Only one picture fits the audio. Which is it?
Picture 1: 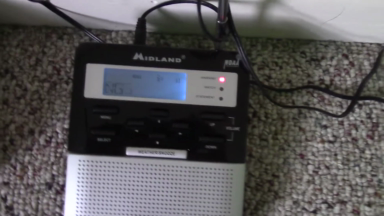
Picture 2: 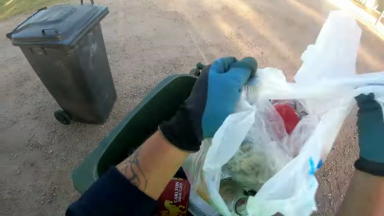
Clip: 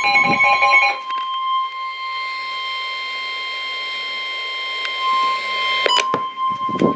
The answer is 1